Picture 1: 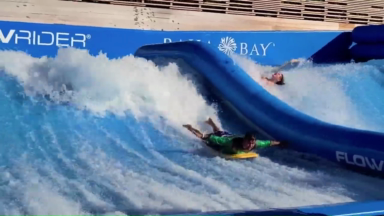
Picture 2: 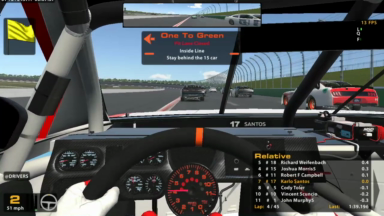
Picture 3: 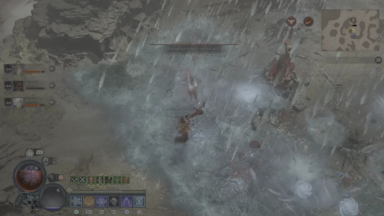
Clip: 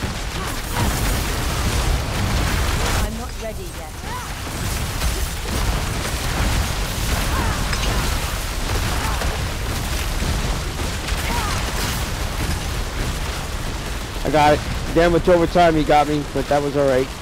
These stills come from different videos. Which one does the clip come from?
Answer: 3